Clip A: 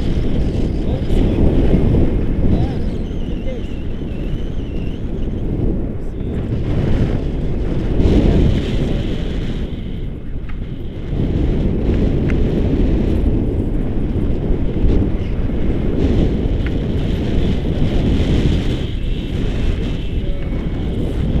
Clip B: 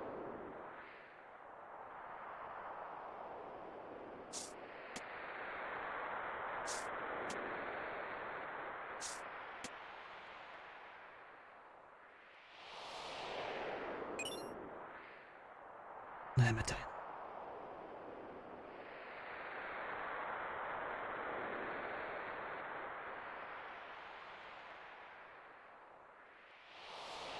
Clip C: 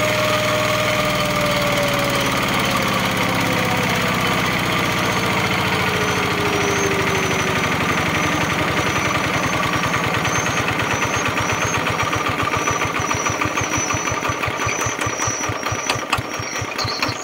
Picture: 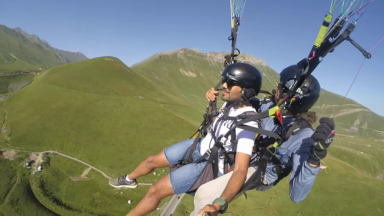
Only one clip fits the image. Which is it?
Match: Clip A